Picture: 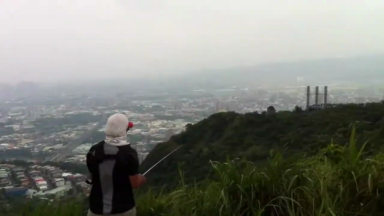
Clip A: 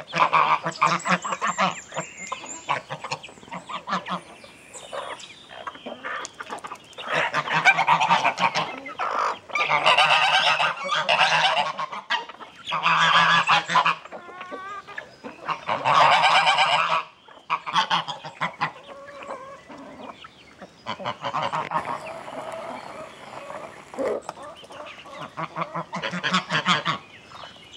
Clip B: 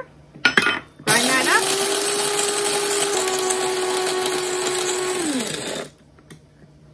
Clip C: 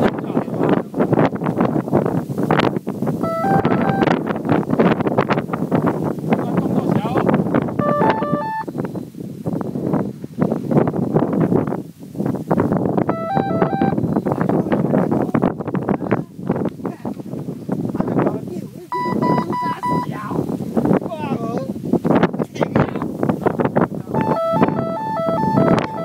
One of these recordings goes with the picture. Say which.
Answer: C